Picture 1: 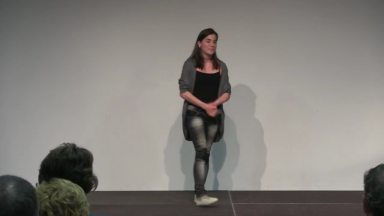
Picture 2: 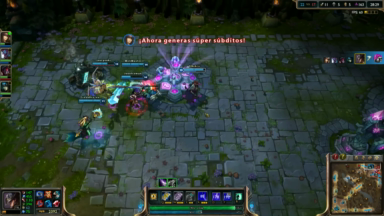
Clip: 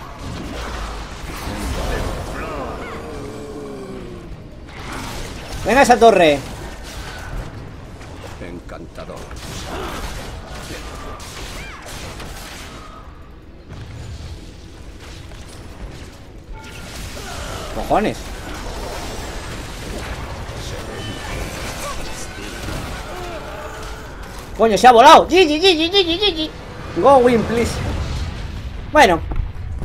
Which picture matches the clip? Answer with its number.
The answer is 2